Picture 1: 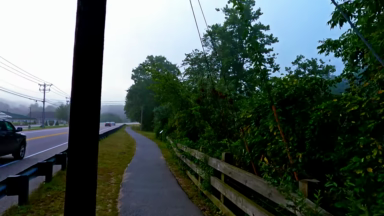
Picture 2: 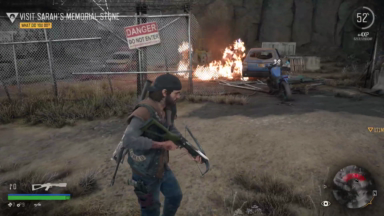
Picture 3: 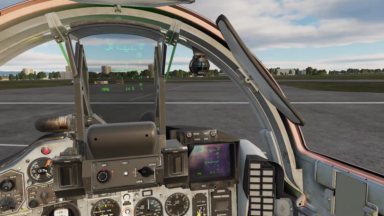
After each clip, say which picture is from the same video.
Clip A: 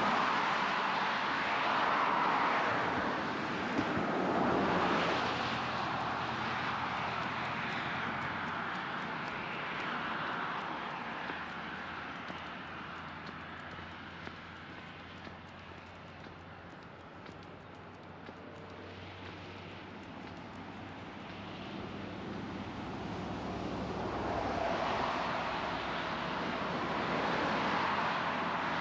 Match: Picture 1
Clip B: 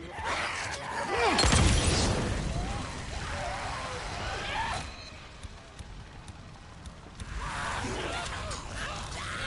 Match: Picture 2